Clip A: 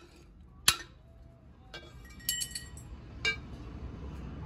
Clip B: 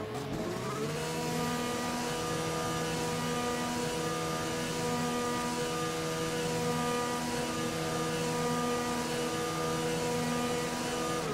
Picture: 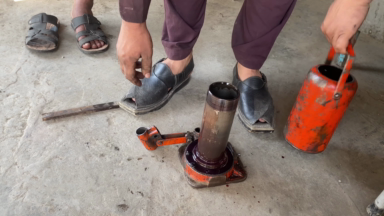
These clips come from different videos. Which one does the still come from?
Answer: A